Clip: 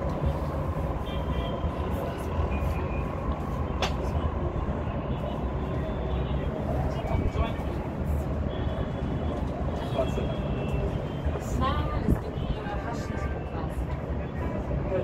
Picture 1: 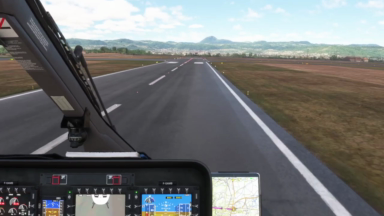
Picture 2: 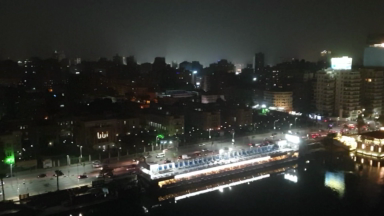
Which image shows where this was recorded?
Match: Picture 2